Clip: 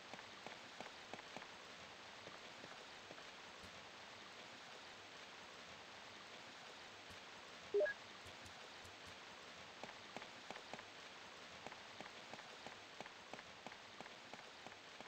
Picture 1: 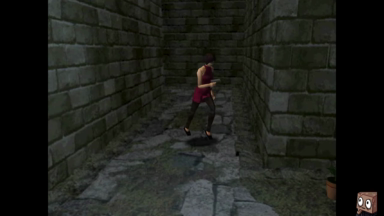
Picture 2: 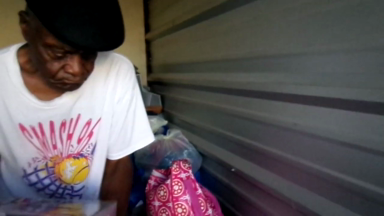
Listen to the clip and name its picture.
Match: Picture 1